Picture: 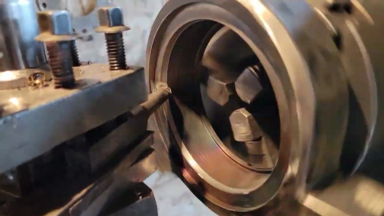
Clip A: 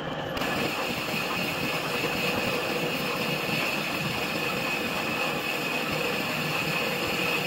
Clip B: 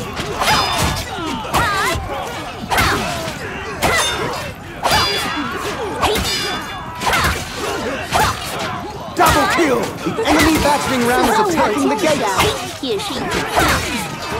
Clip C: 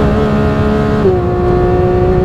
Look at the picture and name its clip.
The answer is A